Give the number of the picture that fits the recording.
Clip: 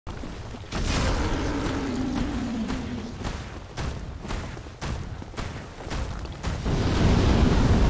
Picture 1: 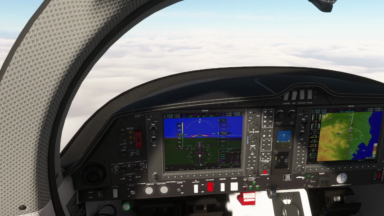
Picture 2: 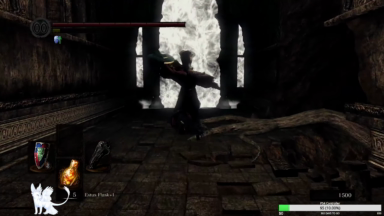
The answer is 2